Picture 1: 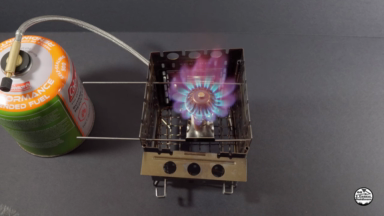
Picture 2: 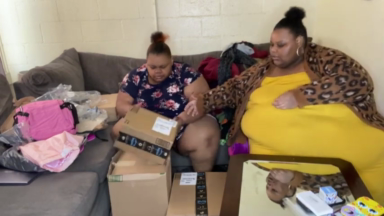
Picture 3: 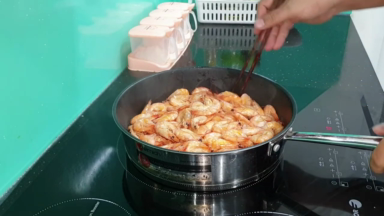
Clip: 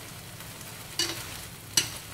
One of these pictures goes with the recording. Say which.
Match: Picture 3